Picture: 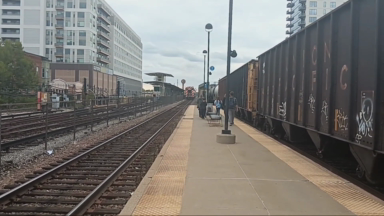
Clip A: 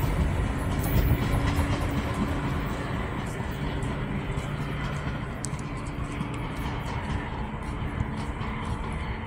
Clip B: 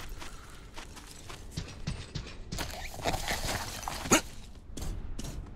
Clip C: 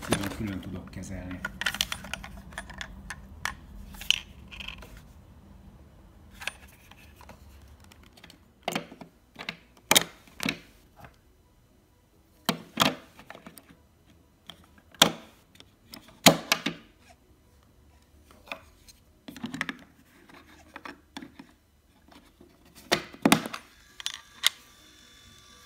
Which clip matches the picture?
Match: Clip A